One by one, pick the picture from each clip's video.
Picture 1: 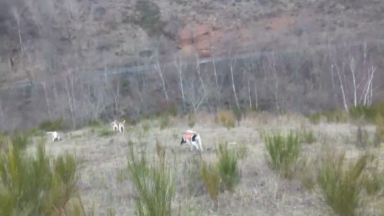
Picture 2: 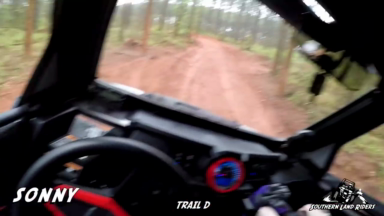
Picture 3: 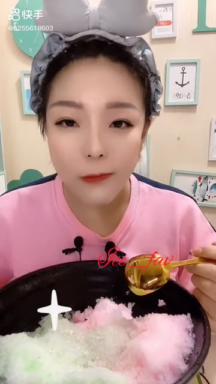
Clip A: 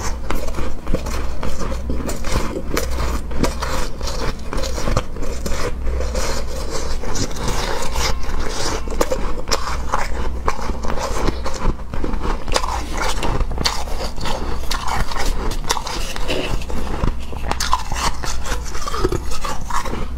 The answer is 3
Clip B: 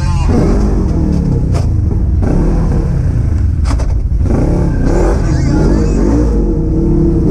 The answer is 2